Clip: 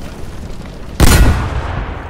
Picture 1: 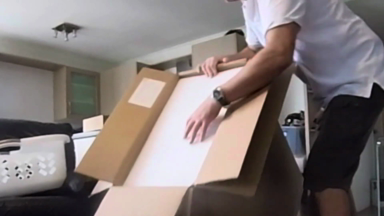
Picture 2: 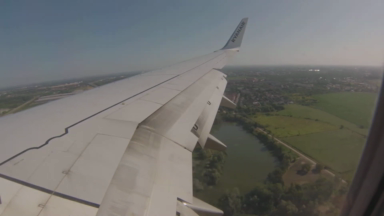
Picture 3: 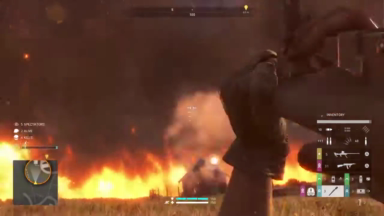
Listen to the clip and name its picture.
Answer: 3